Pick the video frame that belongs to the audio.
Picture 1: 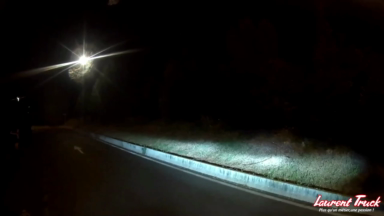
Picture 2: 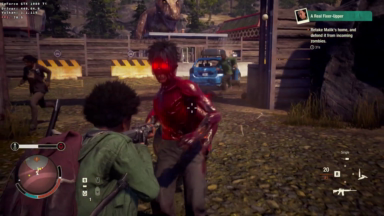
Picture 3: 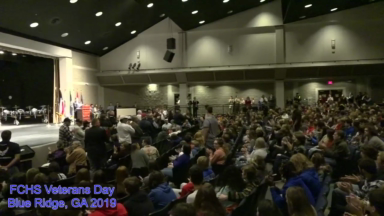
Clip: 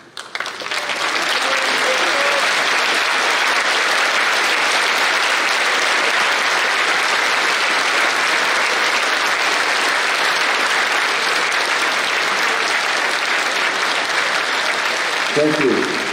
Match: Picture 3